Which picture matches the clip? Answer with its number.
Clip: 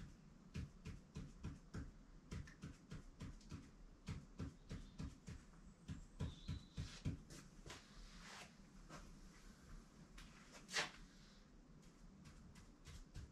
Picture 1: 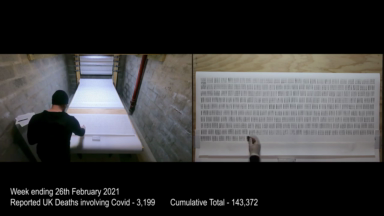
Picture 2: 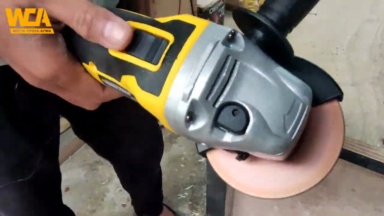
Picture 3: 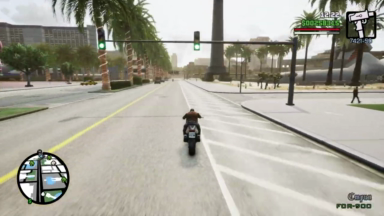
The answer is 1